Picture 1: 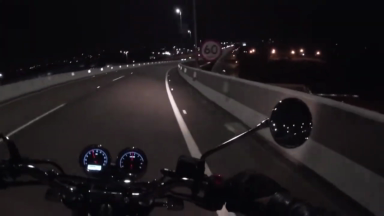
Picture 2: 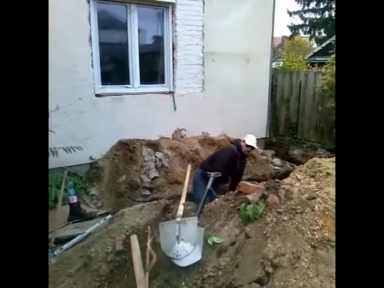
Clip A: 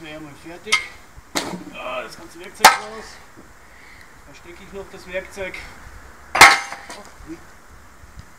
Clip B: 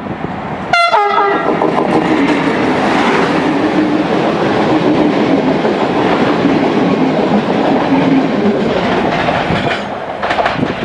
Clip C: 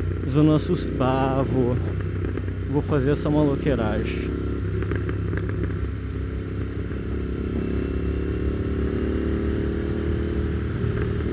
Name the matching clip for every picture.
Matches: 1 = C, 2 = A